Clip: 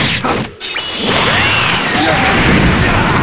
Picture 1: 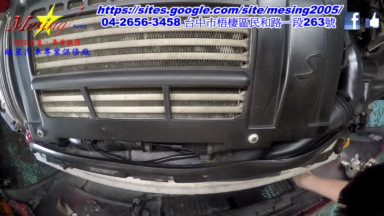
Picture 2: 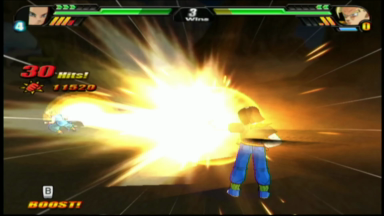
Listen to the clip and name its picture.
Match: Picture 2